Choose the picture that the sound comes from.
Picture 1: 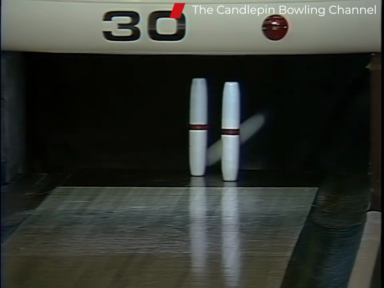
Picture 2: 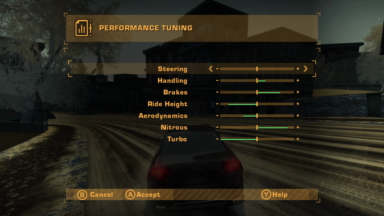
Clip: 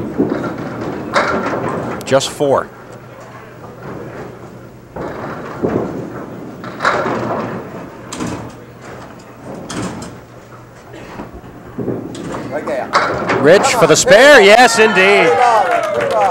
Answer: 1